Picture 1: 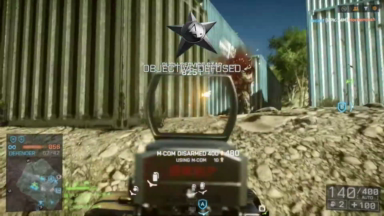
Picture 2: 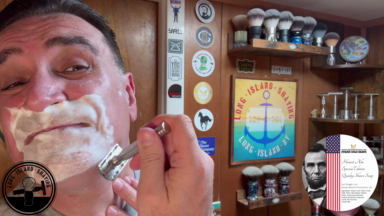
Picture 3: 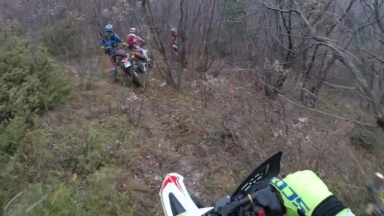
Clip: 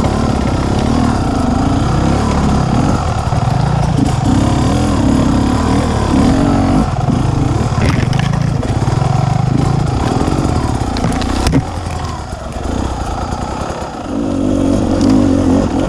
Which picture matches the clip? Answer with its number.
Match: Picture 3